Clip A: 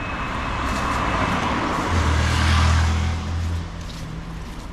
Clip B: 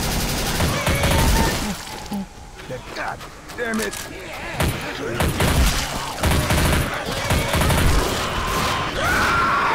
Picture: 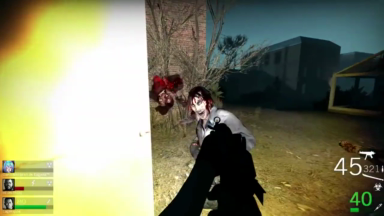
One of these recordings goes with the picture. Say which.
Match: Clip B